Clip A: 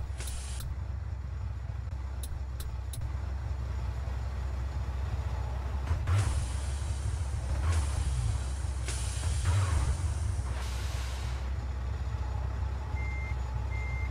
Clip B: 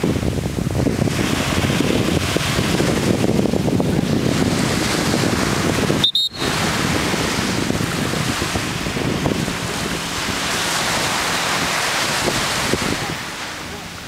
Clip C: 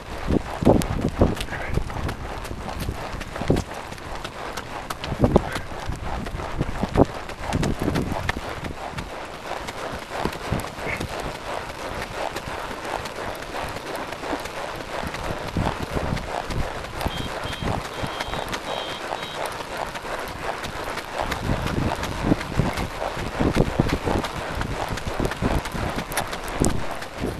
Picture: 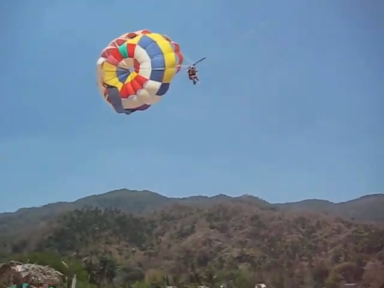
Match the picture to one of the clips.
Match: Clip B